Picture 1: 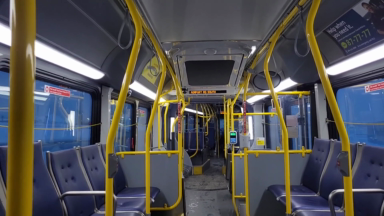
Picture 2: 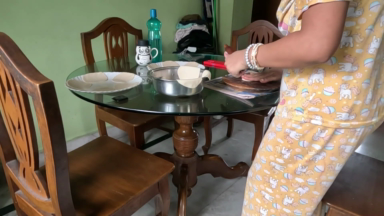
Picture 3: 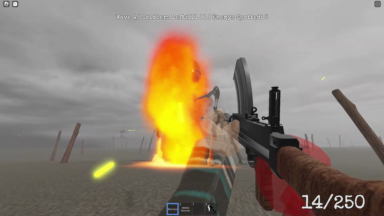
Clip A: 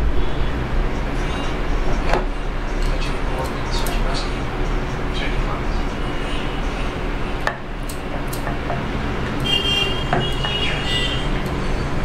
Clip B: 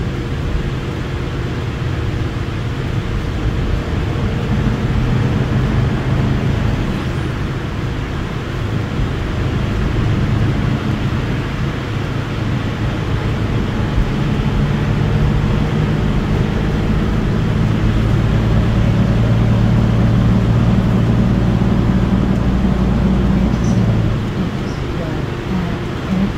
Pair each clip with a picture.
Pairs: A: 2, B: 1